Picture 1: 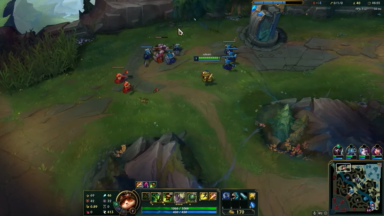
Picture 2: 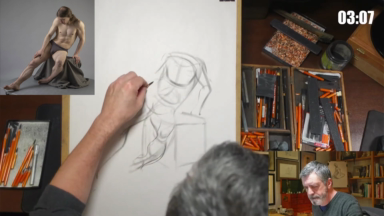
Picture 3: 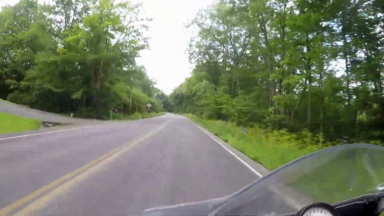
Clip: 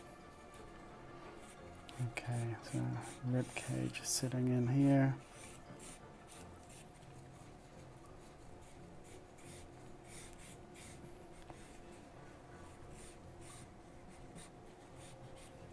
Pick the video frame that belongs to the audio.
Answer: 2